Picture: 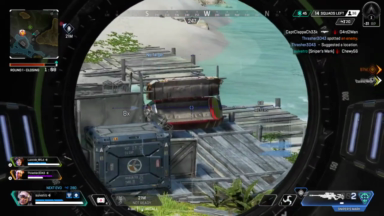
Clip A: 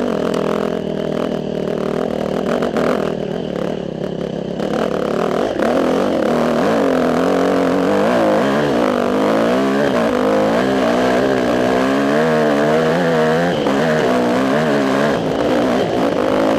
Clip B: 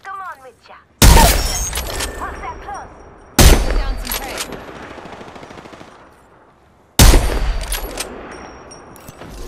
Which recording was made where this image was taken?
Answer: B